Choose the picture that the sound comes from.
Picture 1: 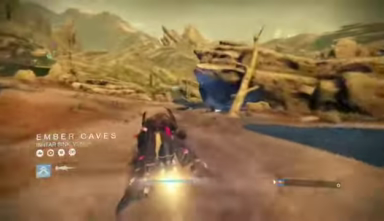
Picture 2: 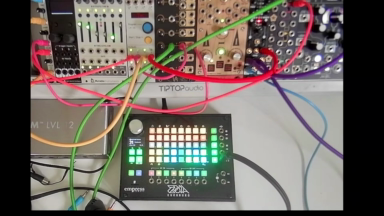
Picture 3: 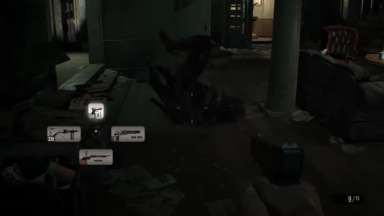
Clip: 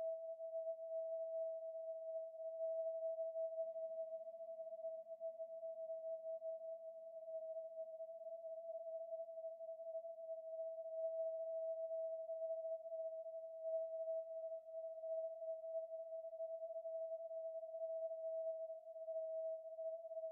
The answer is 2